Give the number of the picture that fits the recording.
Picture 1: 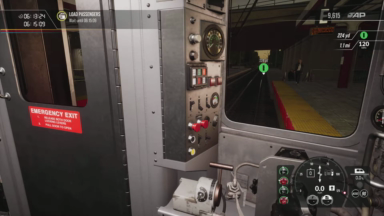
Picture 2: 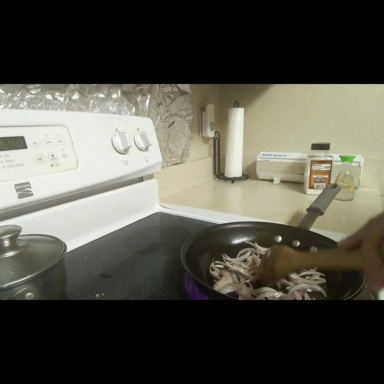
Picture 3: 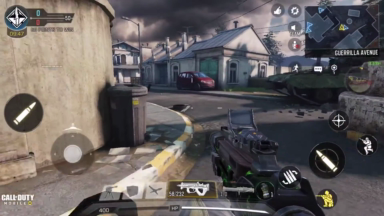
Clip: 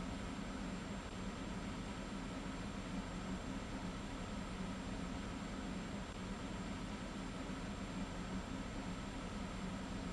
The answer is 1